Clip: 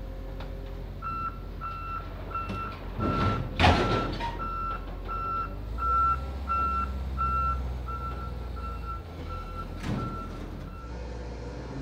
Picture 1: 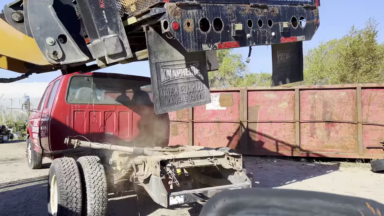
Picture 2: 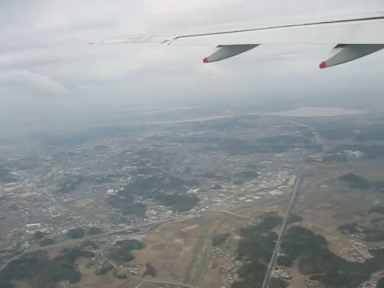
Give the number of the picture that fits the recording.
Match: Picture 1